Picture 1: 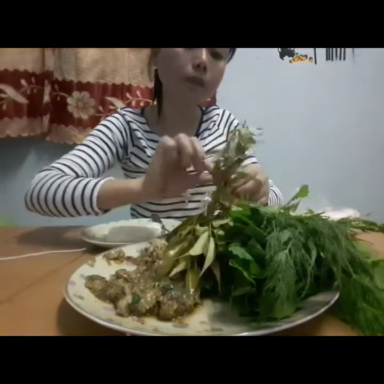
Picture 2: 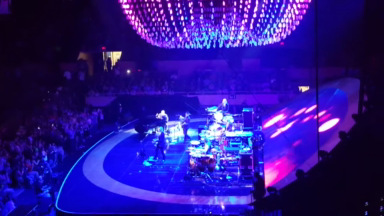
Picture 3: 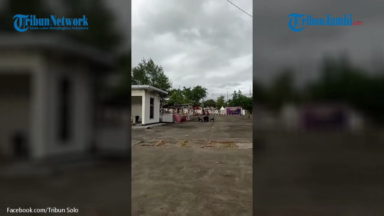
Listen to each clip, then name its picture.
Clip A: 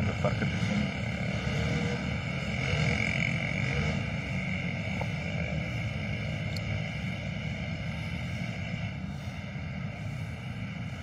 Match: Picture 3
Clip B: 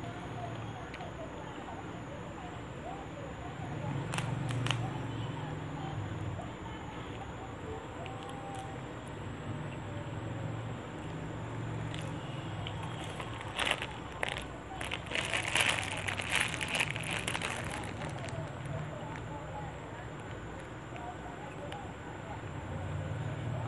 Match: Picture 1